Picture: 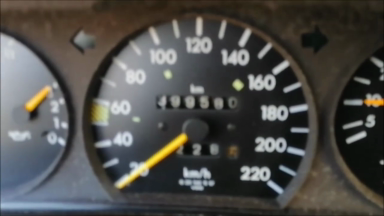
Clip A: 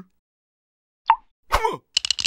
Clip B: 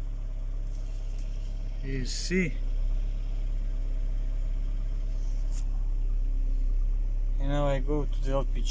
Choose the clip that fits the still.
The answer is B